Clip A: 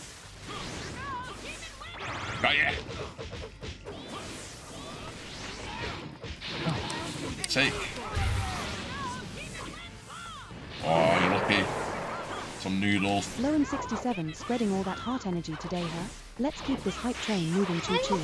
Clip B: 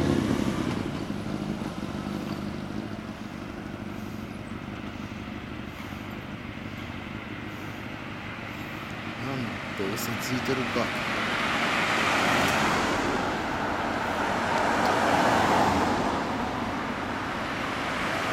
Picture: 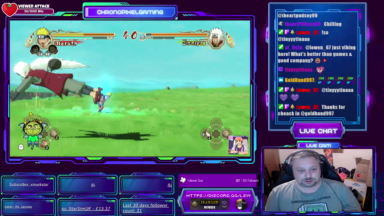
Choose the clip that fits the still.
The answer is A